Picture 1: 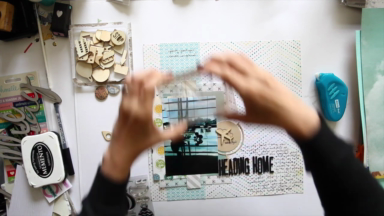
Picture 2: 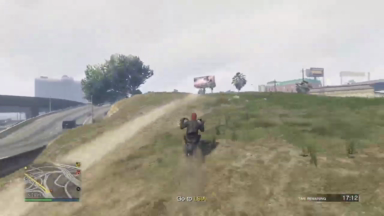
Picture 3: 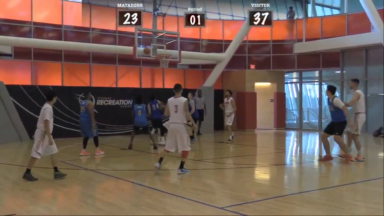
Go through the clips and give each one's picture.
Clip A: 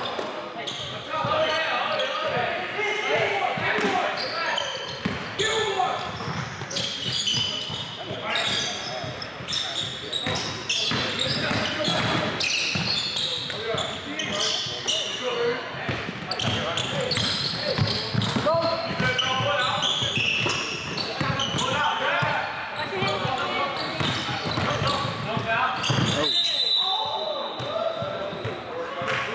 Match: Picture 3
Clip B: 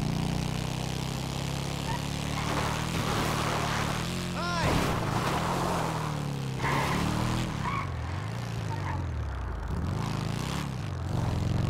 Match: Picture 2